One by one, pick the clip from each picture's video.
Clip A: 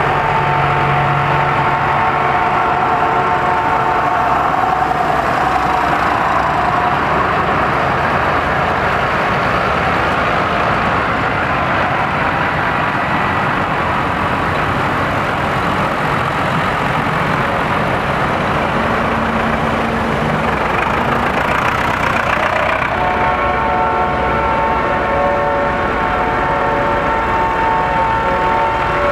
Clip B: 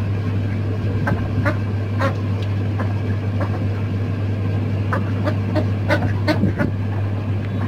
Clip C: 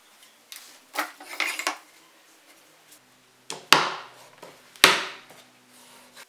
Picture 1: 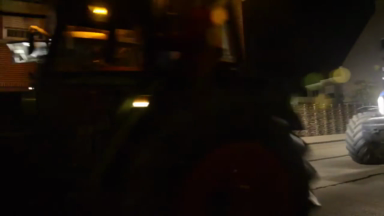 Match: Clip A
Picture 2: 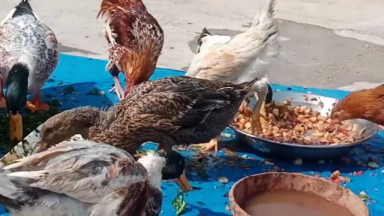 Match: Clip B